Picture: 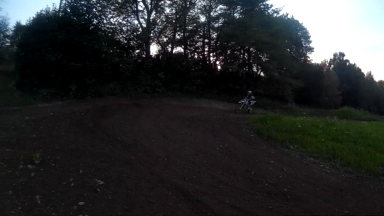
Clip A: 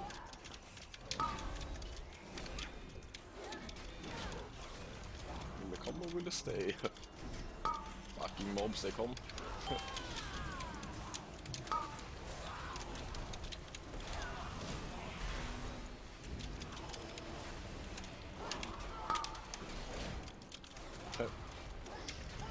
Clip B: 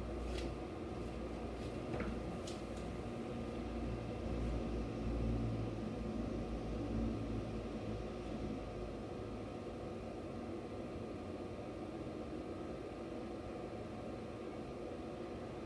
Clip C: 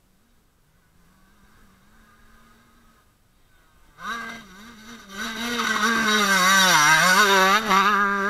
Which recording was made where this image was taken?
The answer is C